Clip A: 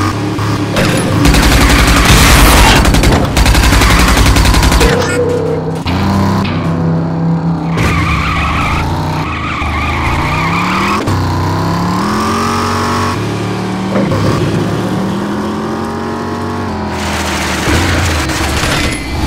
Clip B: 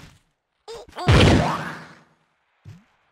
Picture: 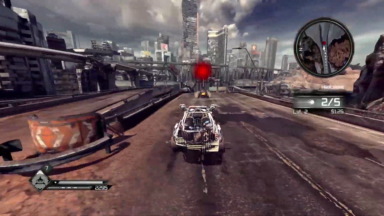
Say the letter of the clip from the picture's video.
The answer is A